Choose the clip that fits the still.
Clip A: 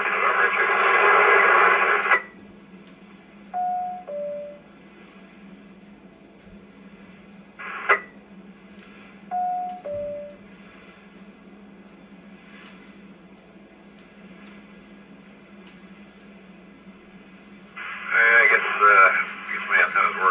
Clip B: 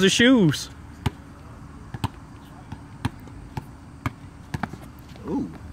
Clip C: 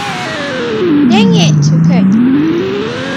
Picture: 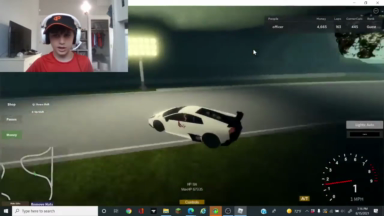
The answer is C